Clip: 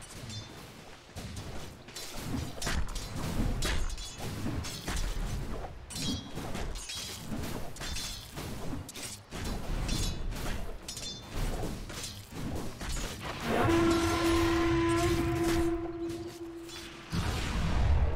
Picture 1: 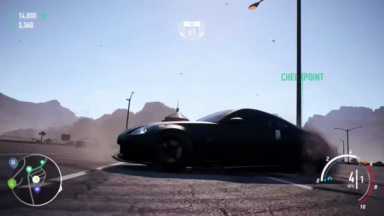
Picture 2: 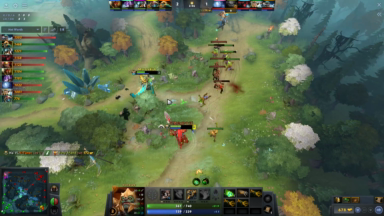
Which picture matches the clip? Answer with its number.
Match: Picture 2